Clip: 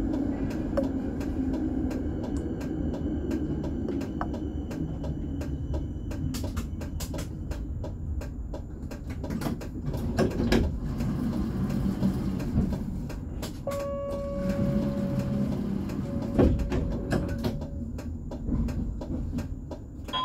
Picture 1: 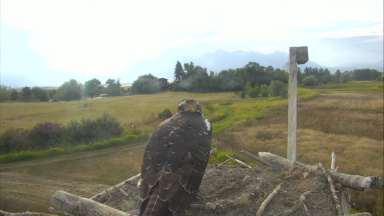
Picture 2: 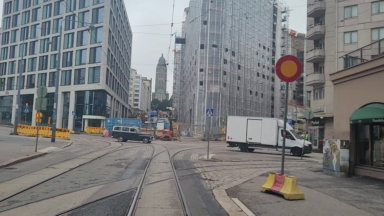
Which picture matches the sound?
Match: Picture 2